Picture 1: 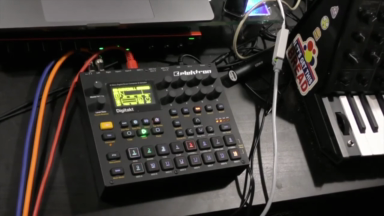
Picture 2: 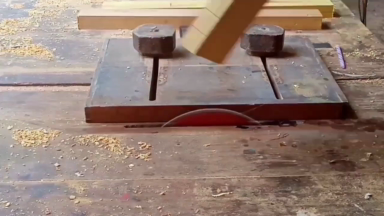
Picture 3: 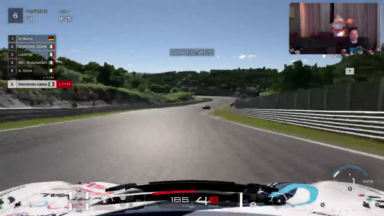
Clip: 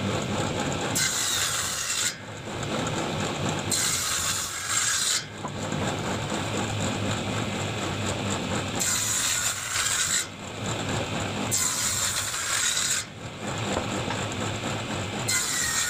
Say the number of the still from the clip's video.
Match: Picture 2